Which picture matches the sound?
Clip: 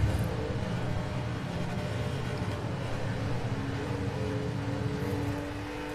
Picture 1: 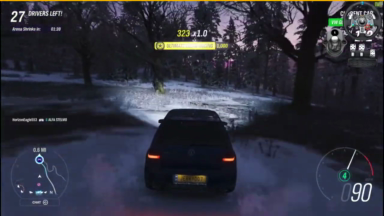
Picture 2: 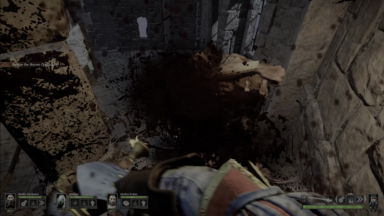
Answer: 1